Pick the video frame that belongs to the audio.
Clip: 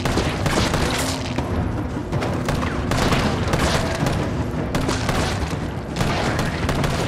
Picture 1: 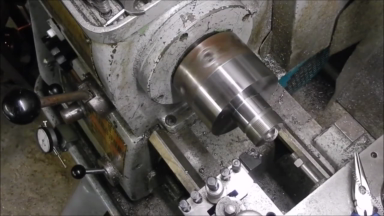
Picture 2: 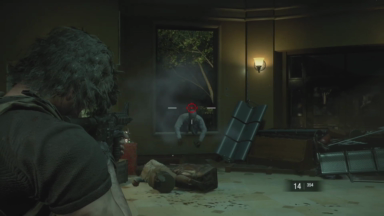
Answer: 2